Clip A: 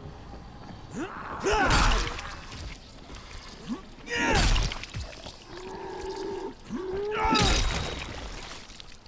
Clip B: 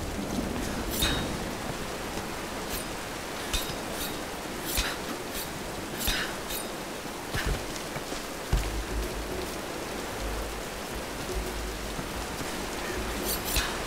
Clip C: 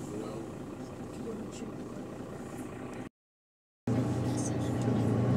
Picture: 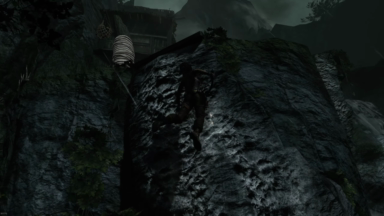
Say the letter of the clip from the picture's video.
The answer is B